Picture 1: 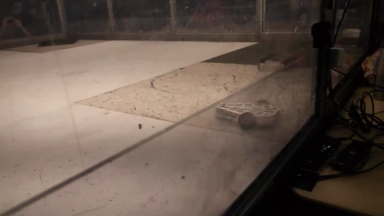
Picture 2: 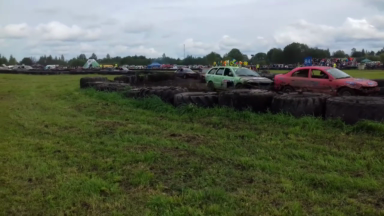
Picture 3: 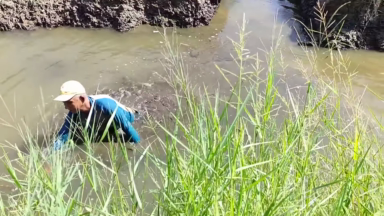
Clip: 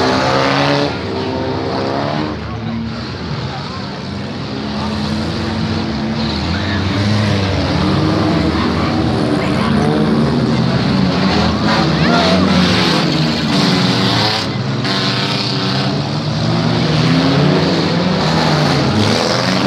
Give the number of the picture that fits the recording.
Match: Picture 2